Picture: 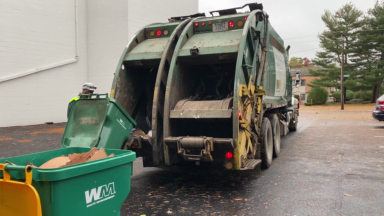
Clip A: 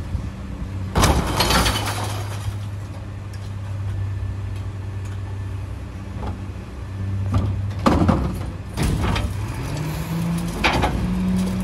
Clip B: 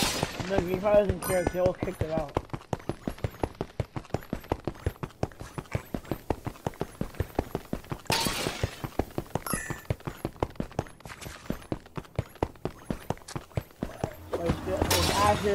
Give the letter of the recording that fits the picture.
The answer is A